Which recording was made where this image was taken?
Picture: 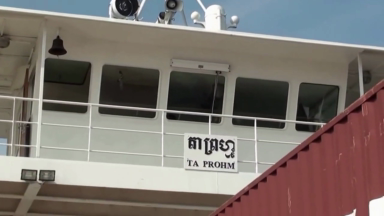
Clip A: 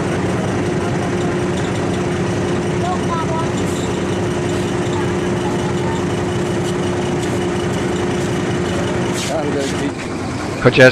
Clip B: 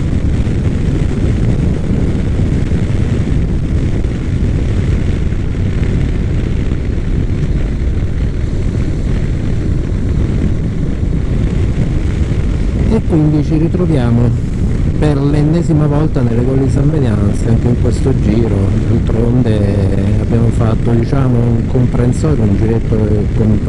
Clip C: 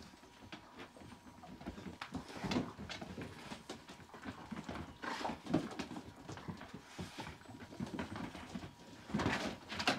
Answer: A